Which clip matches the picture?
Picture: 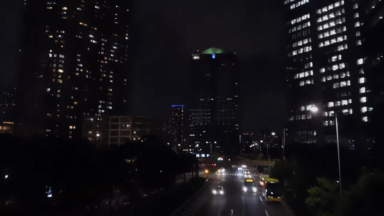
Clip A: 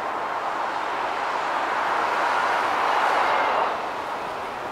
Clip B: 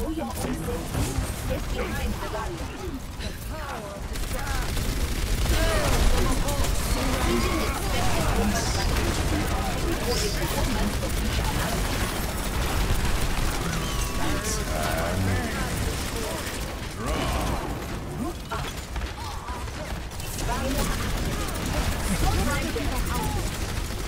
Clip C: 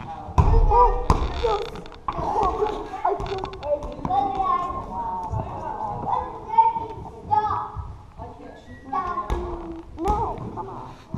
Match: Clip A